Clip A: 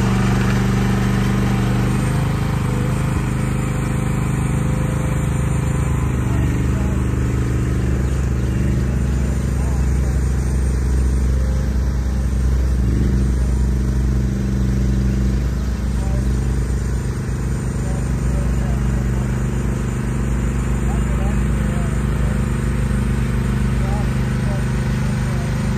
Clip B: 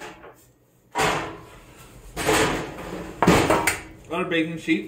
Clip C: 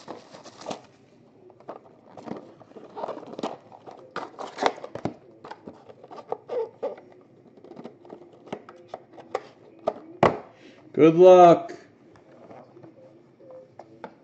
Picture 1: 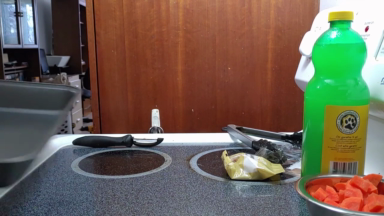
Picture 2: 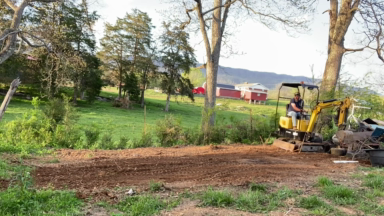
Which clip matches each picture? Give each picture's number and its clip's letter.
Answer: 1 B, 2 A